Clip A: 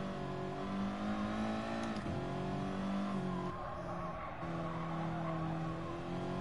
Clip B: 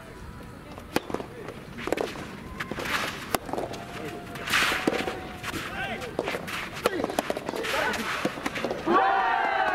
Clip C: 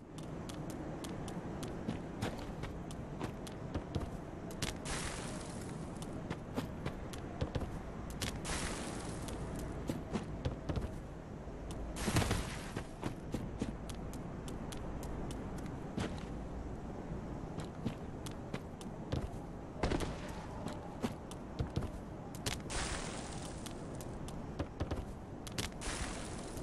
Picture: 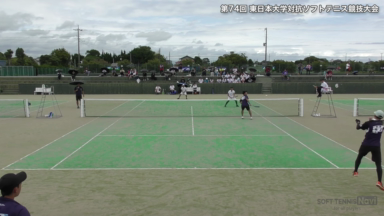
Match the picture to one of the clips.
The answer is B